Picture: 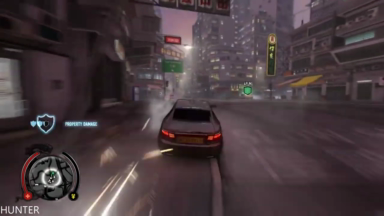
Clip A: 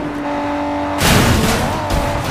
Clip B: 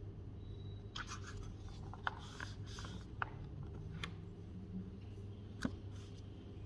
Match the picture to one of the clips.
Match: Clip A